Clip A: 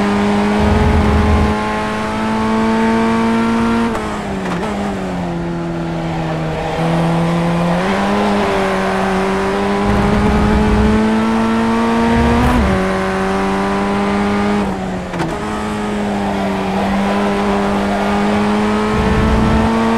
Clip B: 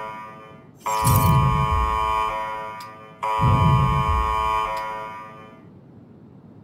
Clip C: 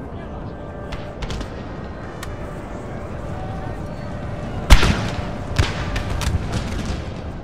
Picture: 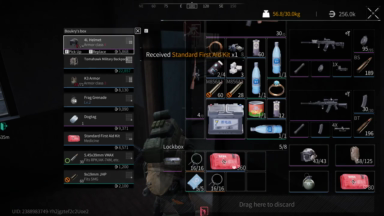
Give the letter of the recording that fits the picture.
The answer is B